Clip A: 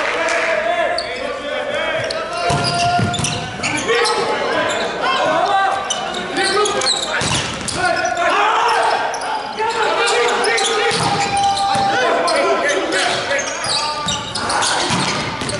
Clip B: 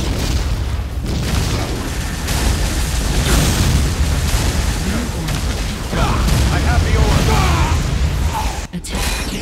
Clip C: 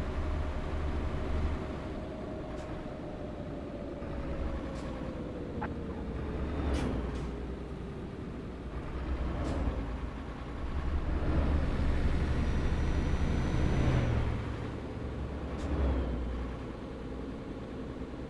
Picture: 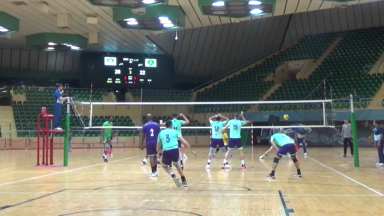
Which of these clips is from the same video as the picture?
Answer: A